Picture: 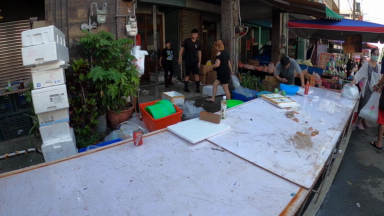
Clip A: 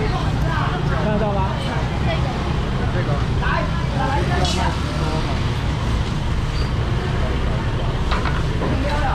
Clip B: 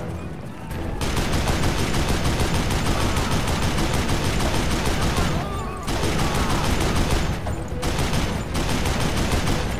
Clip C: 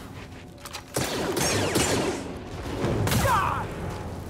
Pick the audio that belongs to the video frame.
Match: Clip A